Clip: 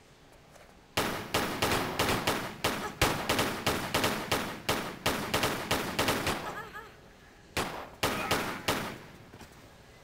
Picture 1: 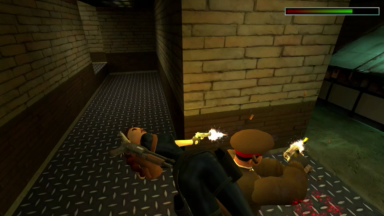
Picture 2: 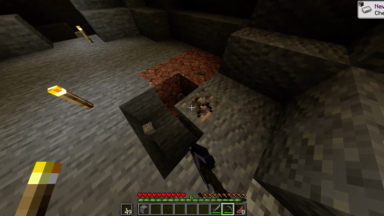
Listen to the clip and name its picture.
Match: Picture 1